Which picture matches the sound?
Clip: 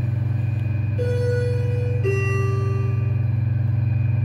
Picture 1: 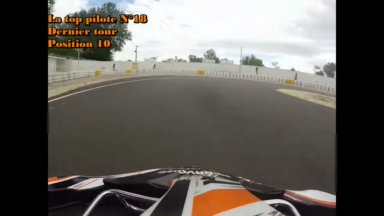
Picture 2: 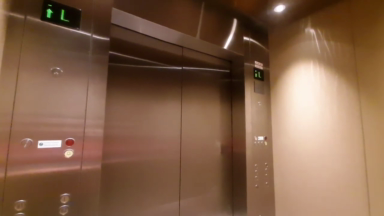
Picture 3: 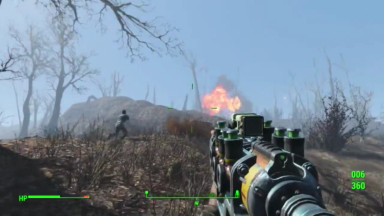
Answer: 2